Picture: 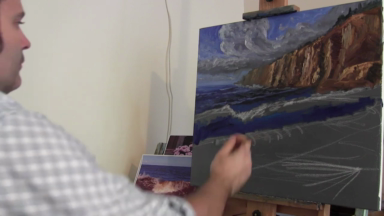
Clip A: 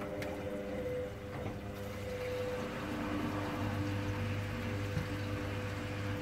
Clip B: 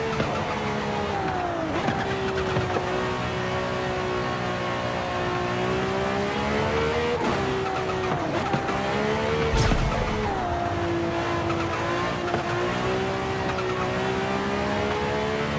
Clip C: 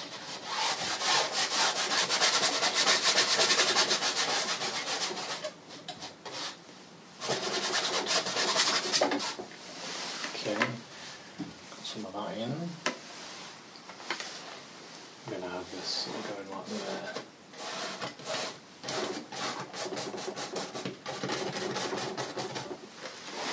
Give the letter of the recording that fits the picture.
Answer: C